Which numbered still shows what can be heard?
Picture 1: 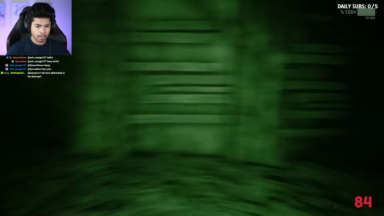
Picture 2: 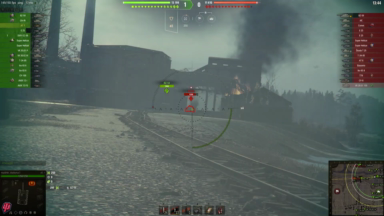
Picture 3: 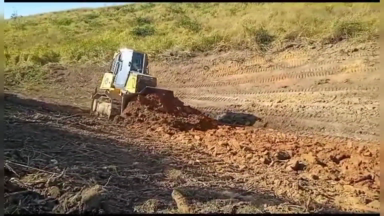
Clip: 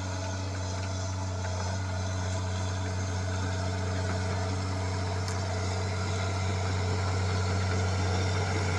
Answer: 3